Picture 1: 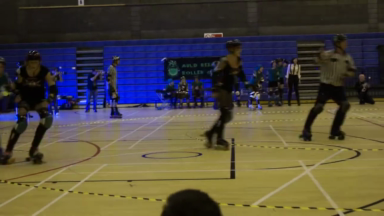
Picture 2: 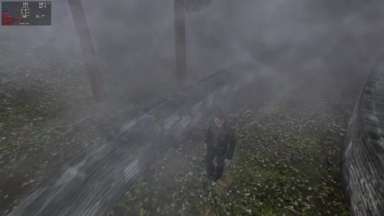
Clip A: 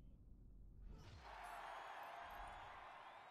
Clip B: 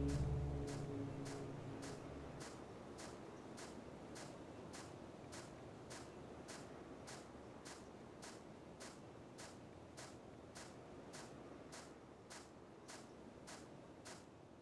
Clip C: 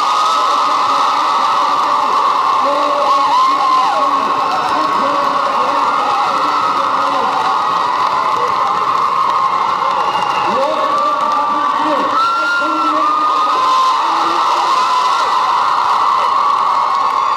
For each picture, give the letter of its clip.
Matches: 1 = C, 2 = B